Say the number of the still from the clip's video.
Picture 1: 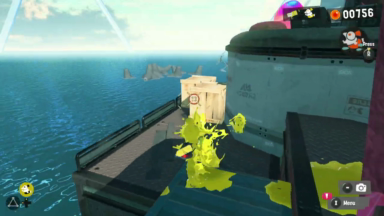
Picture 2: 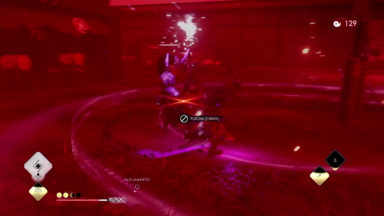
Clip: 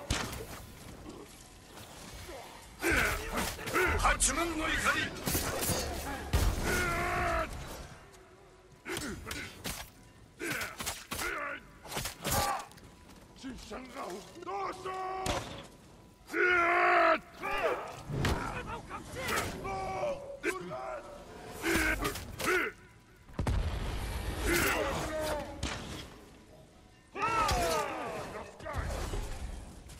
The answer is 2